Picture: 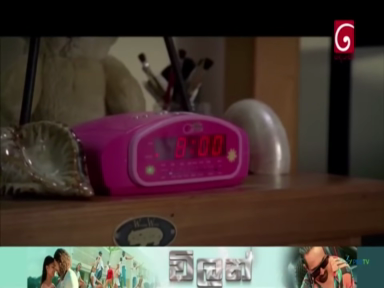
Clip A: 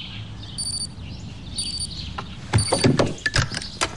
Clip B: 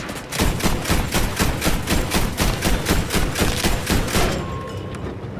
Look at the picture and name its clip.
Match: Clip A